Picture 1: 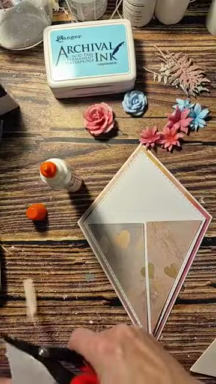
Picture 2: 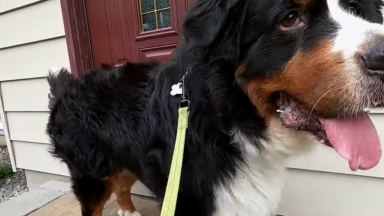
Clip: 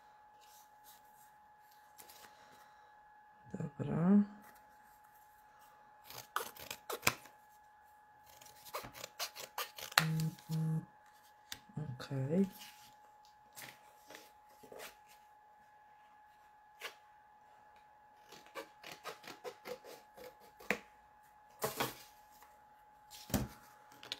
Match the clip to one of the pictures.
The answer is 1